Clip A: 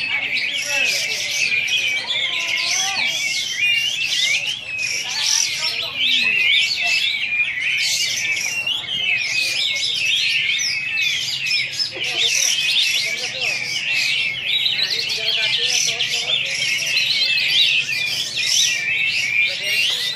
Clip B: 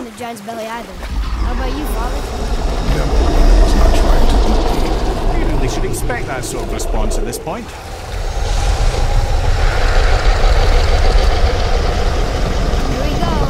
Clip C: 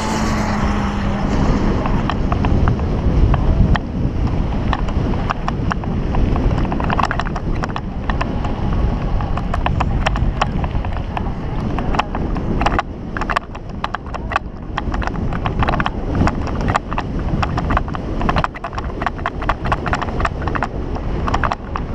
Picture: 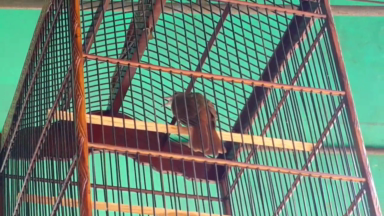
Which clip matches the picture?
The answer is A